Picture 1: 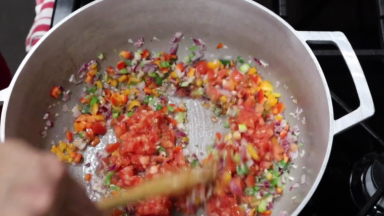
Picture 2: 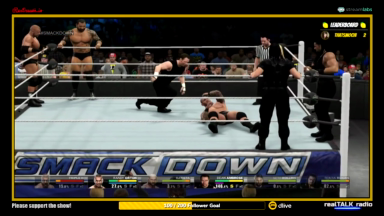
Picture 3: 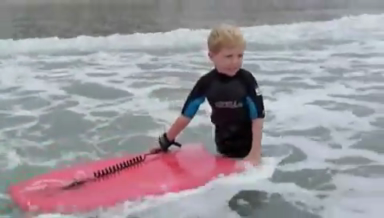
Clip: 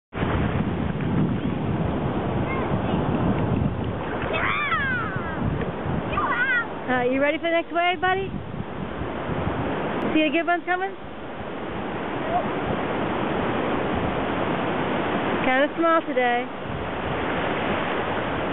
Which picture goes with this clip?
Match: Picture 3